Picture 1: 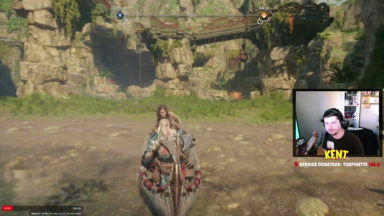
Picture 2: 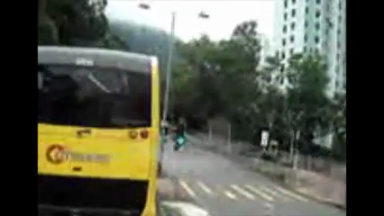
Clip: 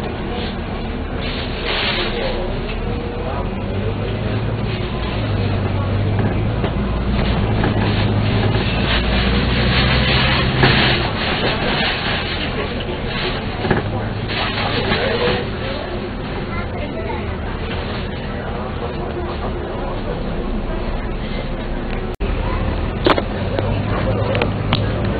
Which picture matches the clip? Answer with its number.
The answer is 2